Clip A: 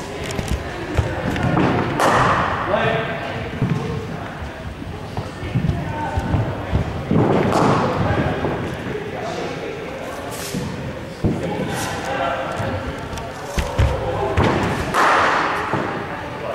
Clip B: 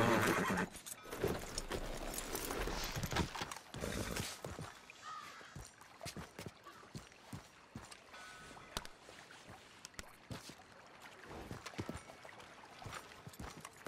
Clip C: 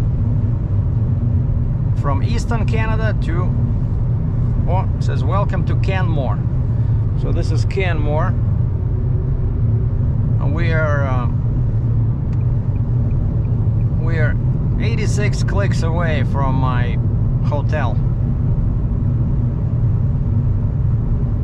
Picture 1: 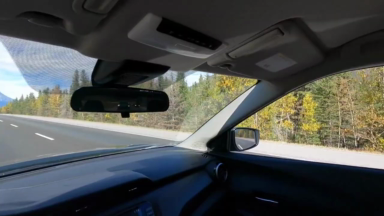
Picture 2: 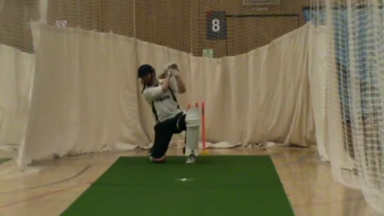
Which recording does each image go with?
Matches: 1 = C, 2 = A